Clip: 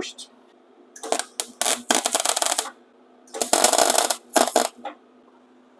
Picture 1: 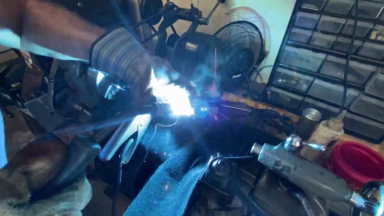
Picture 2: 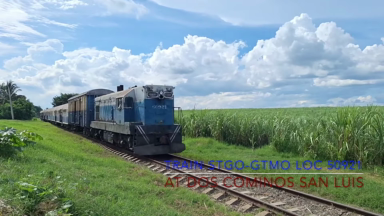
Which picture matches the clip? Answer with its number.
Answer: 1